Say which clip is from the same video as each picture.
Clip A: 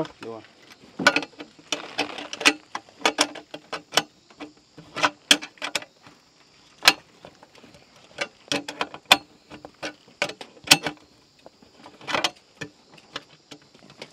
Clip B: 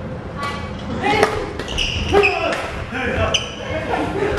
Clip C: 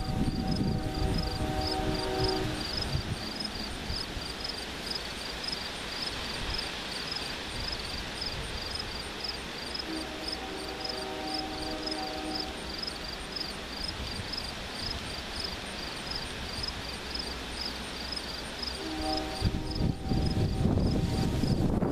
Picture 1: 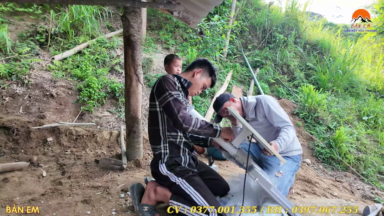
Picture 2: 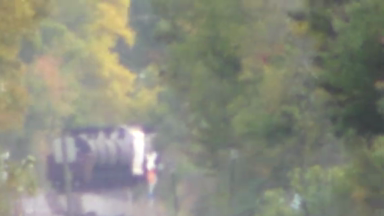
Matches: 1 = A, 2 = C